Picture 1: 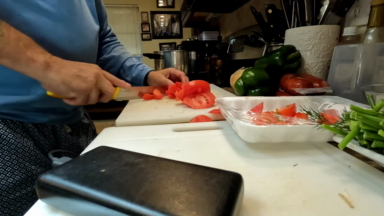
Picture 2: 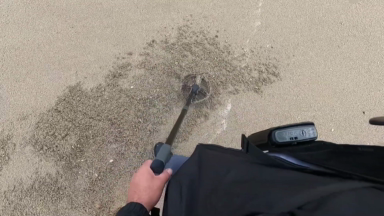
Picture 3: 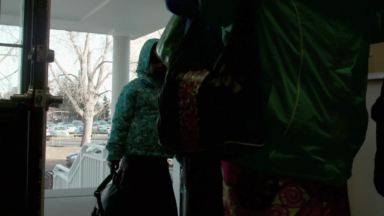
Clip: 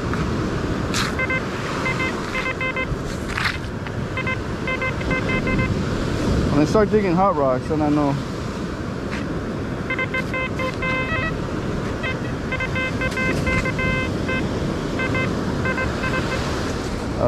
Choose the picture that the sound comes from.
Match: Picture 2